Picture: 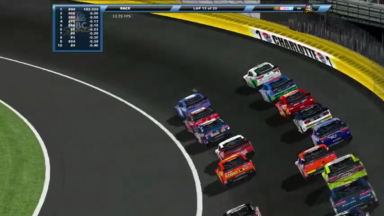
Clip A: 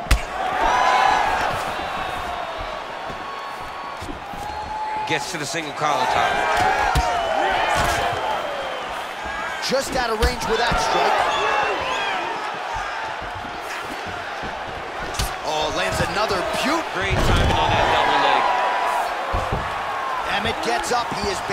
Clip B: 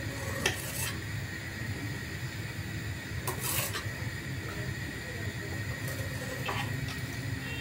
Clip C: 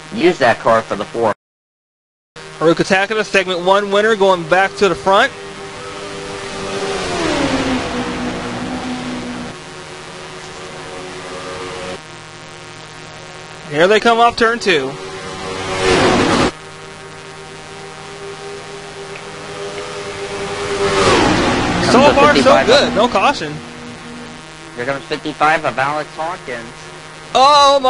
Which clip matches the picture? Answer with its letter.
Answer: C